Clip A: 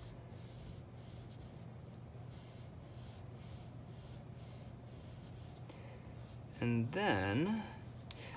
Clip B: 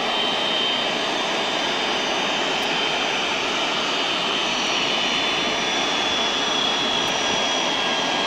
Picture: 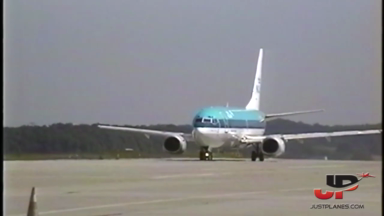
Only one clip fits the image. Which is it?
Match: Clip B